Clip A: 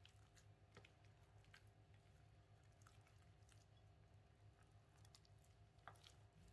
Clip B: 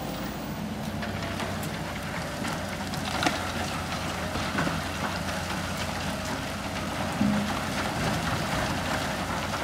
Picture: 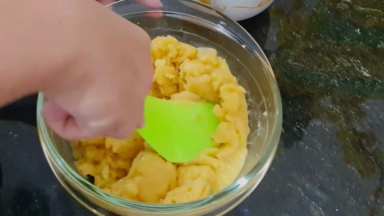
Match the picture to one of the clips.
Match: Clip A